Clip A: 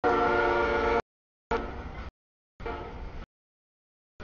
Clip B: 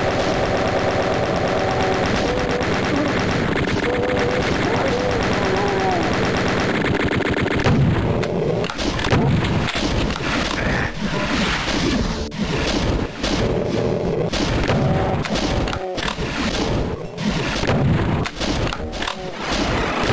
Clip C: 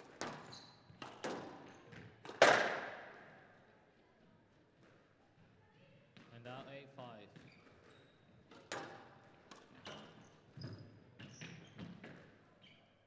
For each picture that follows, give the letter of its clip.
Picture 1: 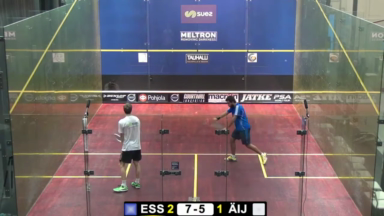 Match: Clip C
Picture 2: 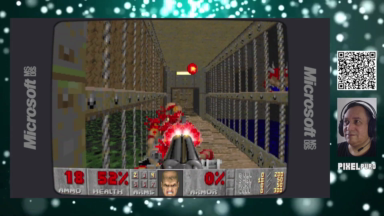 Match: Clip B